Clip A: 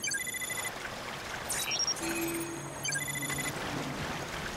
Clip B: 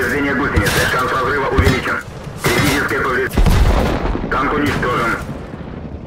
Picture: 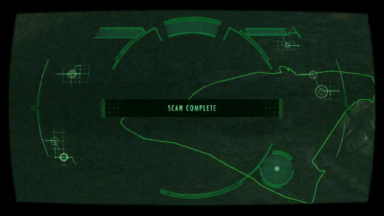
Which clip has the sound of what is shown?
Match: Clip A